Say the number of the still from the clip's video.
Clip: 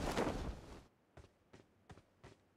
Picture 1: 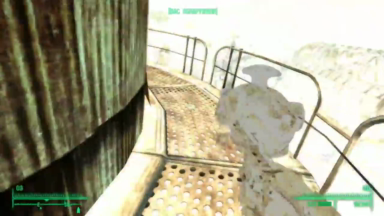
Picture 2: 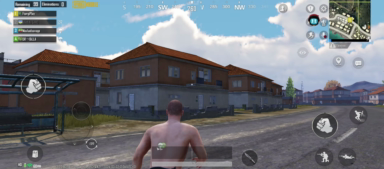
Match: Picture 2